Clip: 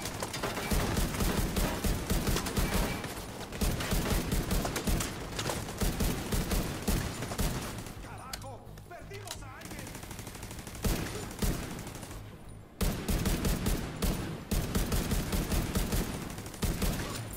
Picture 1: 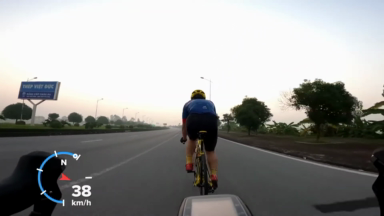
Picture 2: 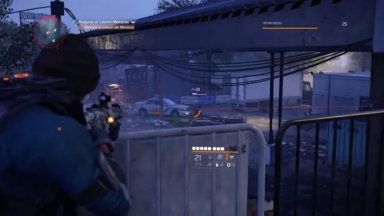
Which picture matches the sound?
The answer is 2